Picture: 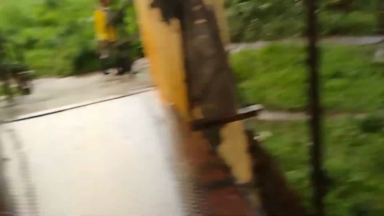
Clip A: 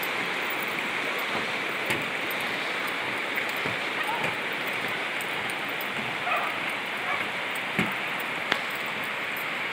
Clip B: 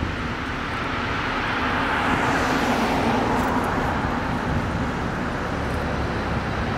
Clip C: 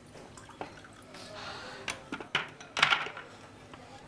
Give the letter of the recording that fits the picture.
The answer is A